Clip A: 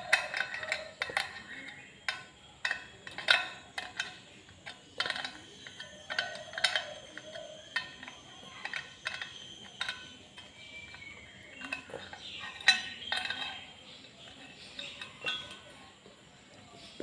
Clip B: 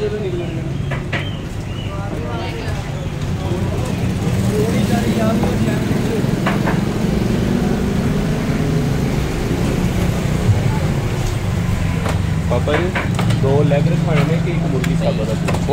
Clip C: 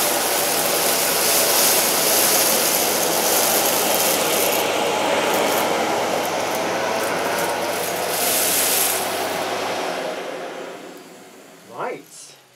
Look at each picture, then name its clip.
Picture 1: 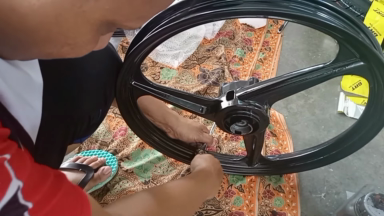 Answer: A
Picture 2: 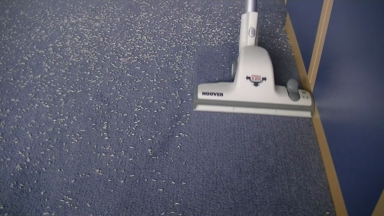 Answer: C